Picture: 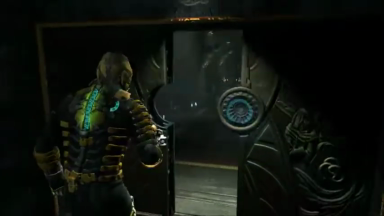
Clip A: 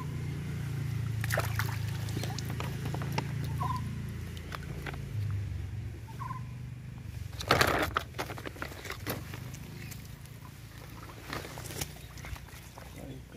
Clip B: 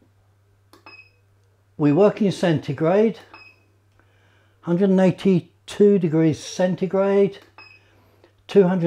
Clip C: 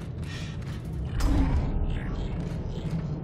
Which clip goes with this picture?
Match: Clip C